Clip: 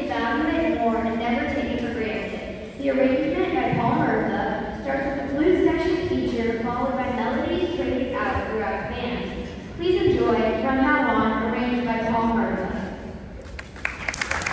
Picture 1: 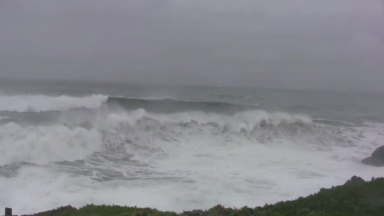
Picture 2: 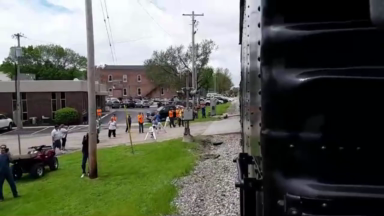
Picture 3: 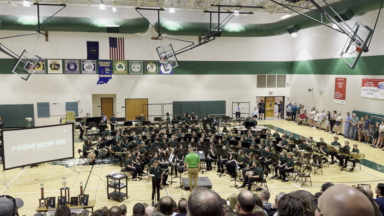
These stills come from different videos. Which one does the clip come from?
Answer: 3